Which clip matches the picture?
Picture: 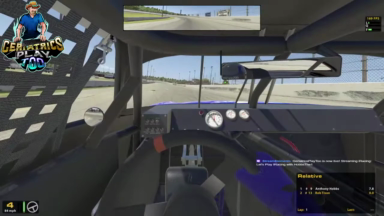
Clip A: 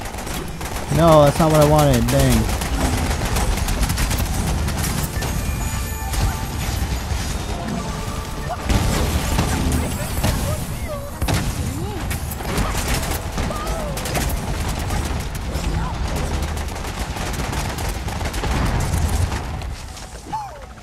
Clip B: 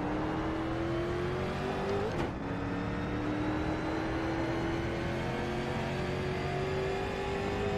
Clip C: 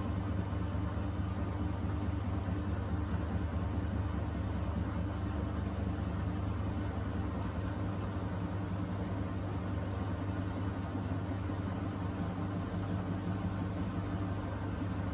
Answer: B